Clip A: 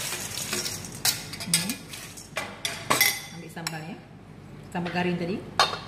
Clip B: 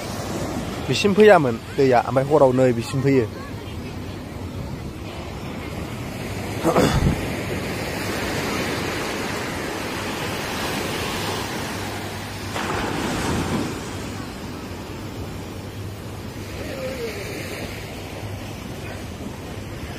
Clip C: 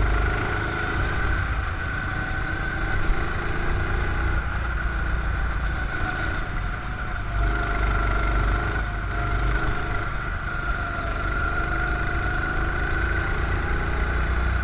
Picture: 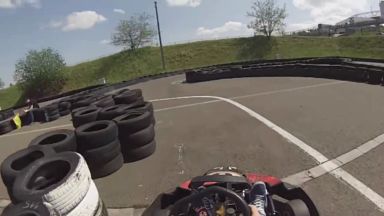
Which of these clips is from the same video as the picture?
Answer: C